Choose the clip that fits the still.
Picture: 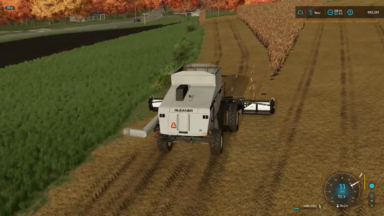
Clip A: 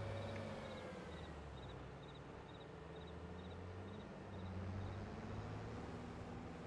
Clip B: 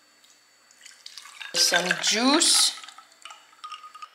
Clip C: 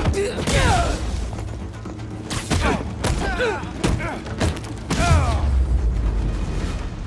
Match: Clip A